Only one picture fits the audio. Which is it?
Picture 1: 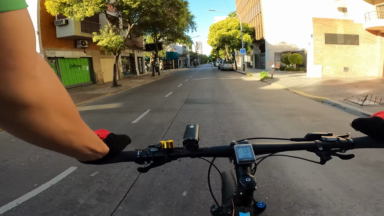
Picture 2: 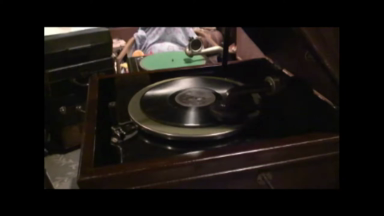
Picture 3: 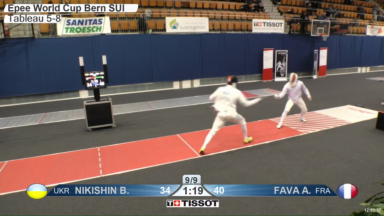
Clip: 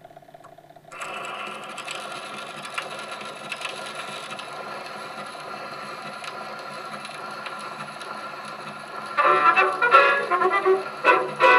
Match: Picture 2